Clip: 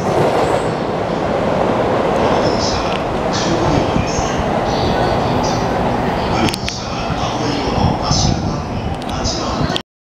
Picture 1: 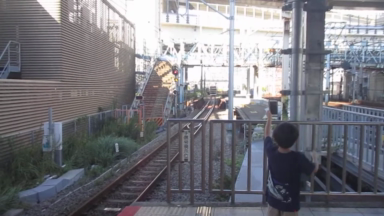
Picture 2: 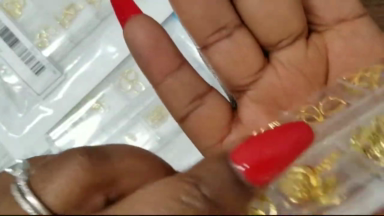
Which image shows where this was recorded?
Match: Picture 1